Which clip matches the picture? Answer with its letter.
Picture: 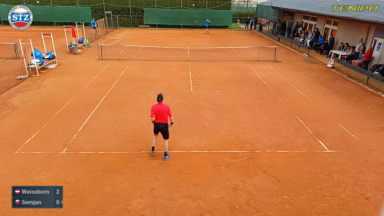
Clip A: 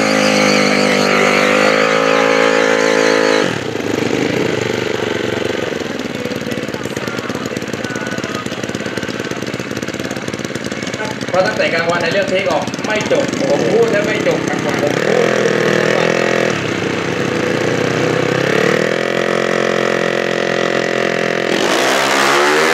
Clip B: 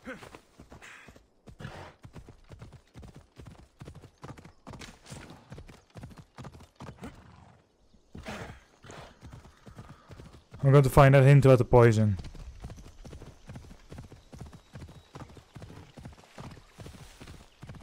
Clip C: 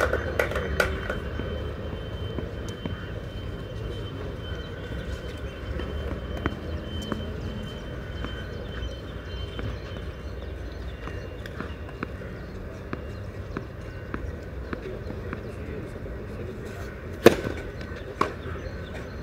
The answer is C